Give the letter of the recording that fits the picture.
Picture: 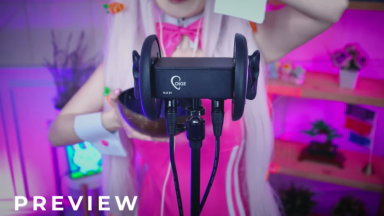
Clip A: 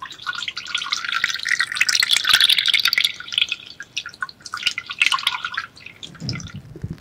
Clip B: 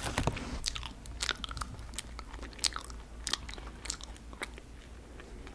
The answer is A